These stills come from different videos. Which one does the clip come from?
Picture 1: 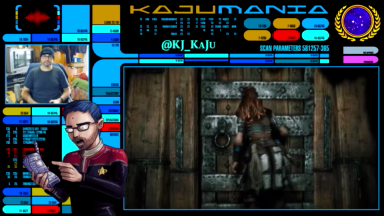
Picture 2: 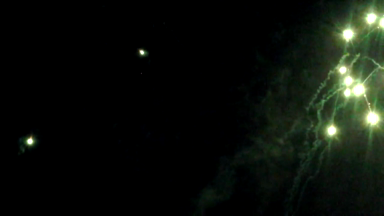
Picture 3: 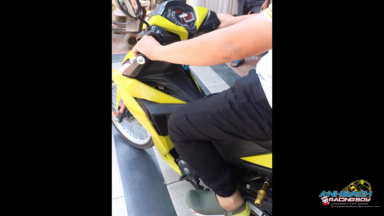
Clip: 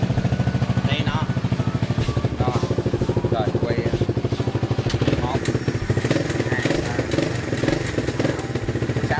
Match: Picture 3